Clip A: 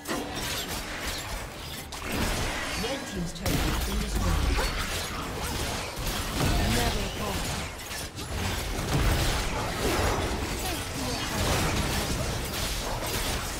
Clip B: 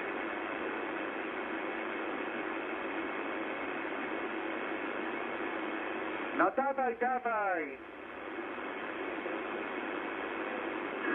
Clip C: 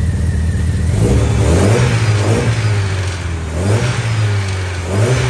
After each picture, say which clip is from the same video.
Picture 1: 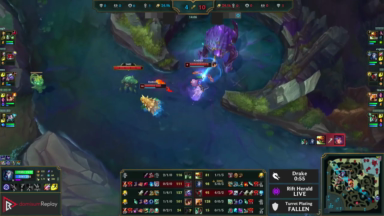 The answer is A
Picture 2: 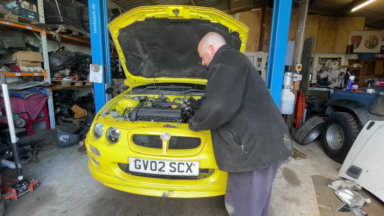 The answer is C